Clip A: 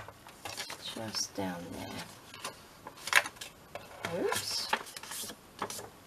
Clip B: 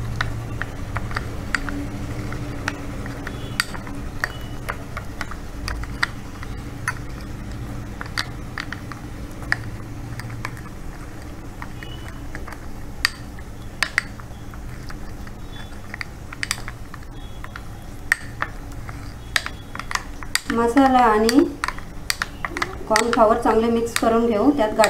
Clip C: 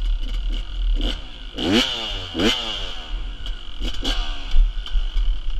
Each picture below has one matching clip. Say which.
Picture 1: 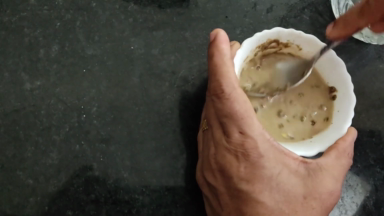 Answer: B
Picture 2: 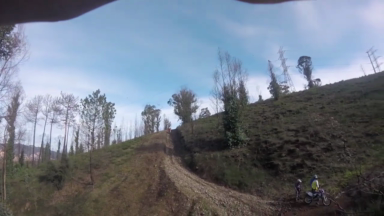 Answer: C